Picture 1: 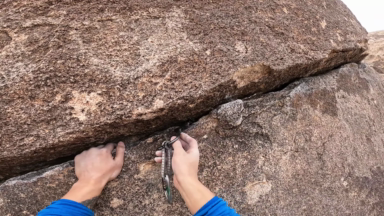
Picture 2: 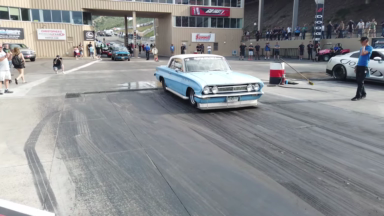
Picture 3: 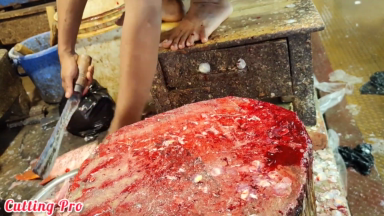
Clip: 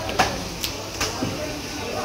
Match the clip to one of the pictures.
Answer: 3